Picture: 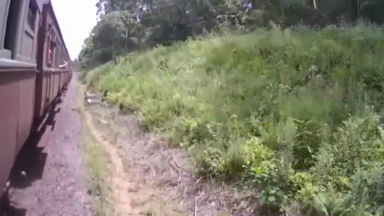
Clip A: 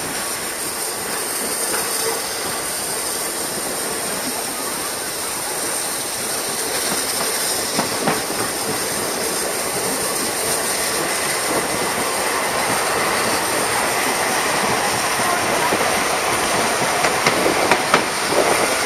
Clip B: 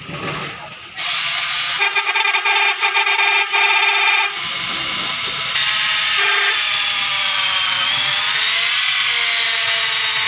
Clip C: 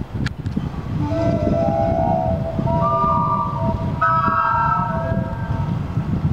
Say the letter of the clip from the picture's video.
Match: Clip A